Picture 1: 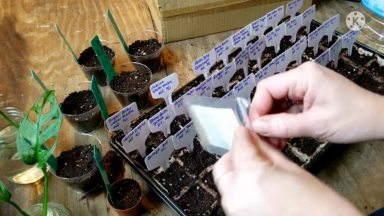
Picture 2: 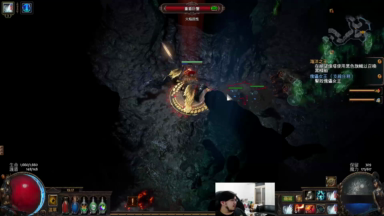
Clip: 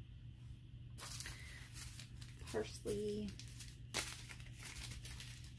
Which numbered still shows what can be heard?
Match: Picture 1